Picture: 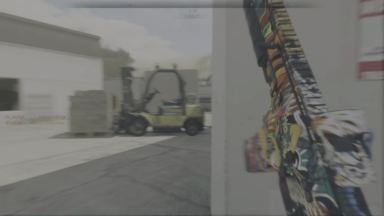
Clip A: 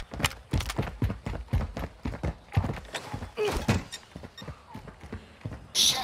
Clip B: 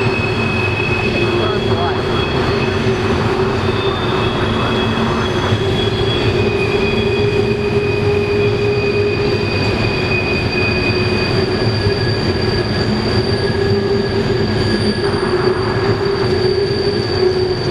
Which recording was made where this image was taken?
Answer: A